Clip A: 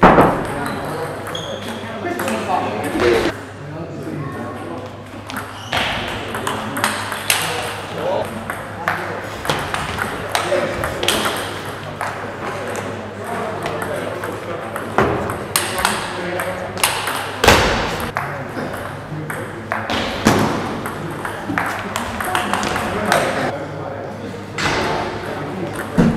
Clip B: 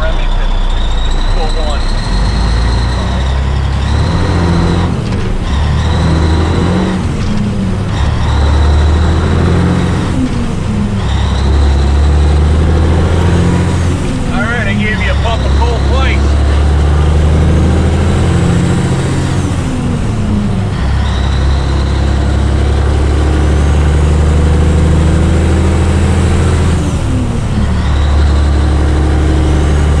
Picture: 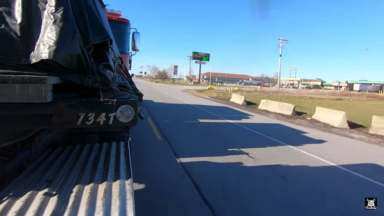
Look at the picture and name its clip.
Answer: B